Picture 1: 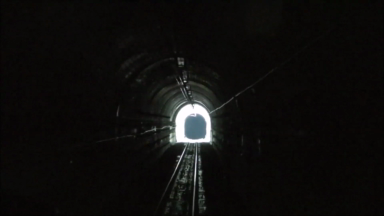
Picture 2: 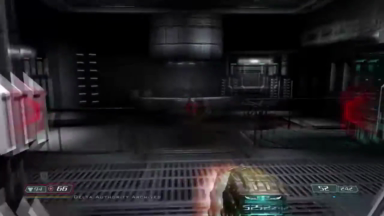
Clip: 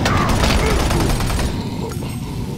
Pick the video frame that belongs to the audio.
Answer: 2